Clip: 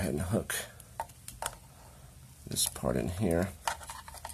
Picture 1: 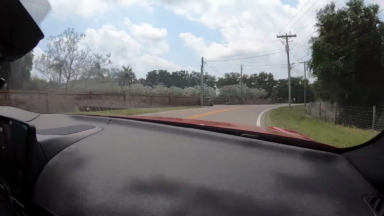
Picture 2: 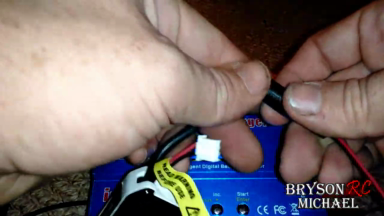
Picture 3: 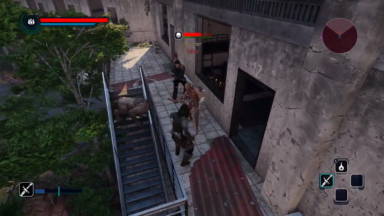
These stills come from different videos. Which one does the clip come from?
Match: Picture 2